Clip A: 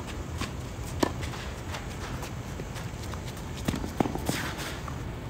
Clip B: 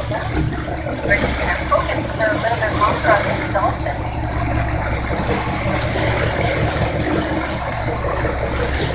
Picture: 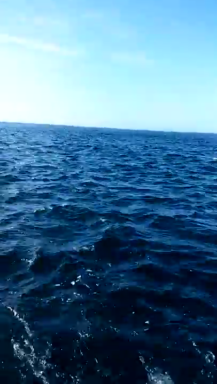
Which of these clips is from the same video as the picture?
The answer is B